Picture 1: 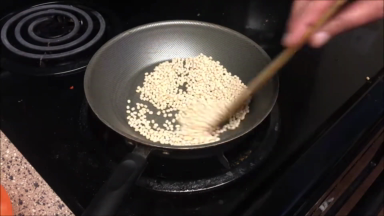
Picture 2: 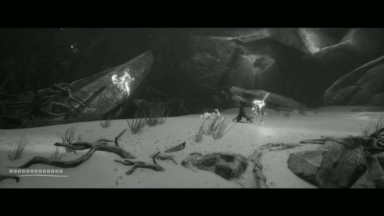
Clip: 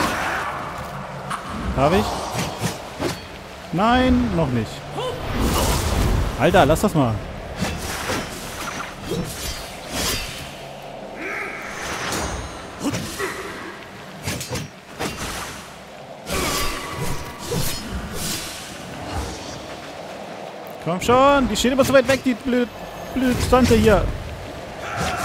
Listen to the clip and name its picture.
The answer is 2